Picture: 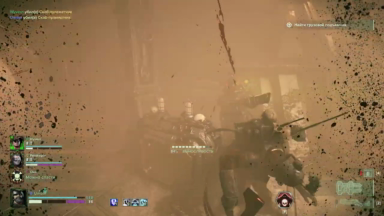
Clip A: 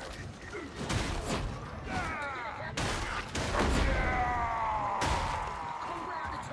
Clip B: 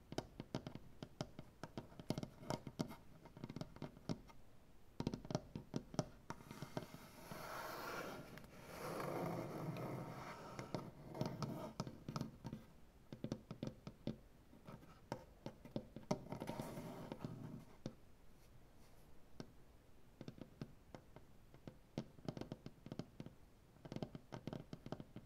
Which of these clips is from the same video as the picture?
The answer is A